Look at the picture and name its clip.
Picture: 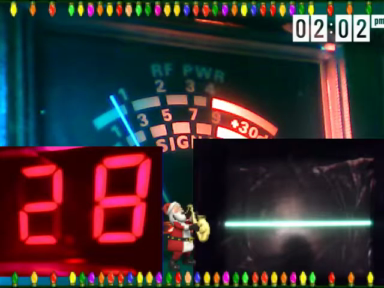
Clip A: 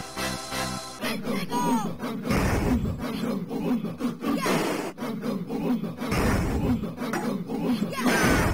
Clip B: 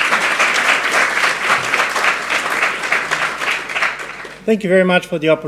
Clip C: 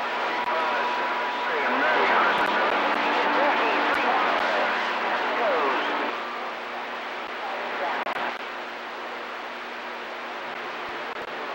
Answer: C